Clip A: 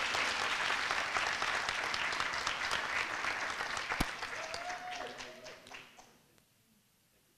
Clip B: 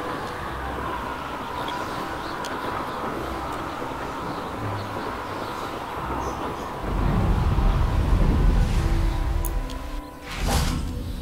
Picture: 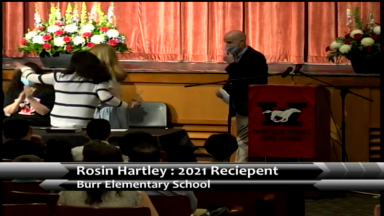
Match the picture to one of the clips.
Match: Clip A